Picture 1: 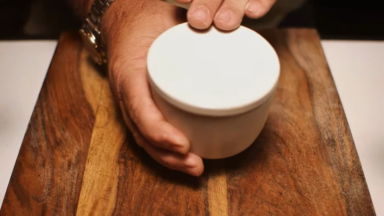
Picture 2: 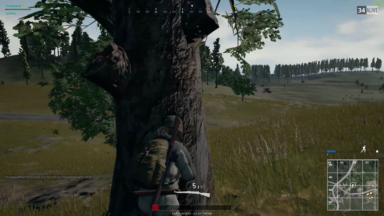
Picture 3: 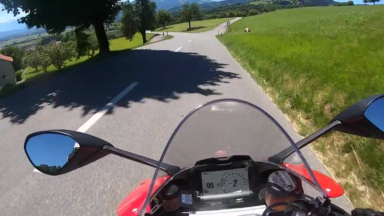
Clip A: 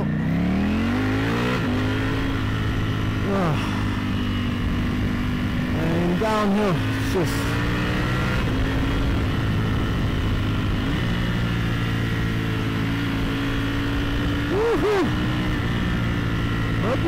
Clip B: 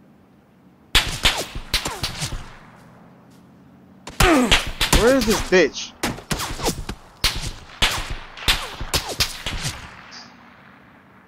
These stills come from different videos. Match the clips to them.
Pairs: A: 3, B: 2